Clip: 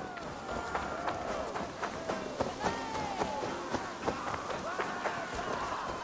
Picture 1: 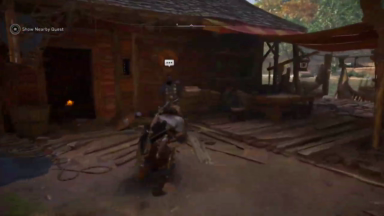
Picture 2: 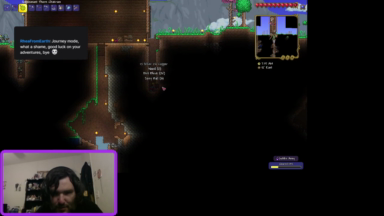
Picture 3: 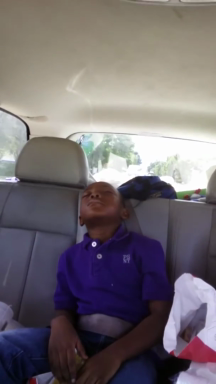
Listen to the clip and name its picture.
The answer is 1